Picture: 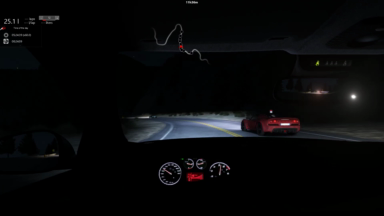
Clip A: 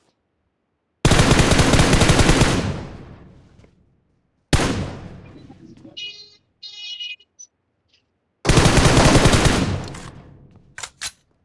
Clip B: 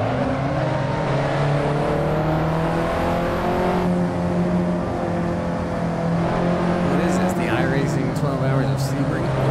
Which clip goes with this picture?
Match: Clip B